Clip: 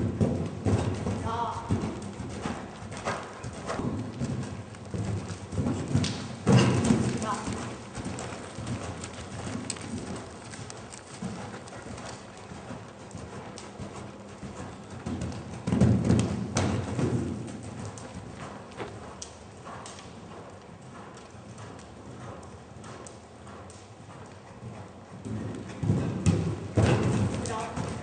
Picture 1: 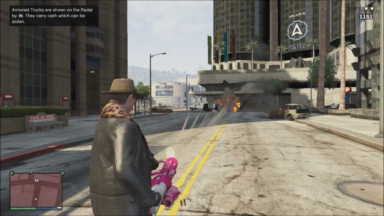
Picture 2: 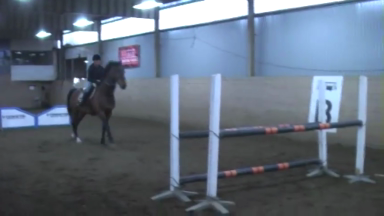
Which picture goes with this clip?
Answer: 2